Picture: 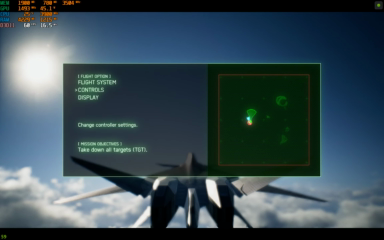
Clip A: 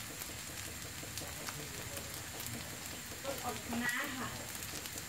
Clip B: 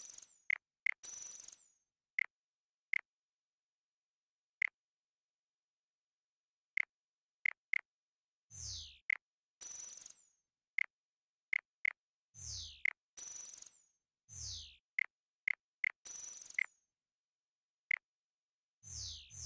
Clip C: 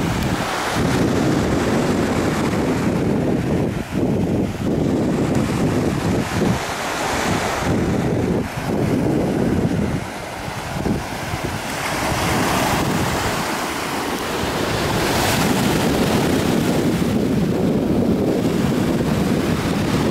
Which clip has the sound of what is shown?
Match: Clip B